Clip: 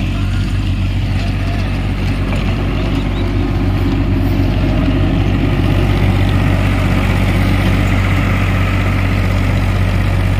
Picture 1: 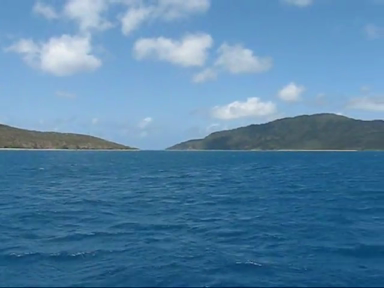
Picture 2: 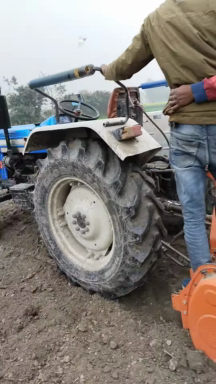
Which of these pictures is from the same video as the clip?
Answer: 2